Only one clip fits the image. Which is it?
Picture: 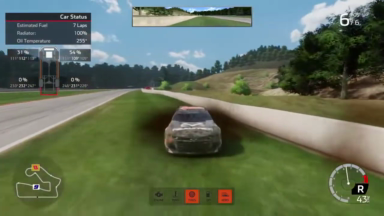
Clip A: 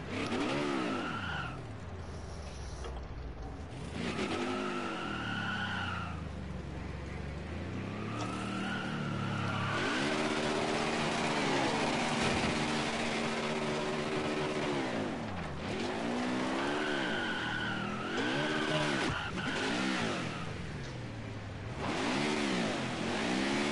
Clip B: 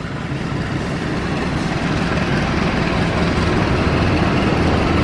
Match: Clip A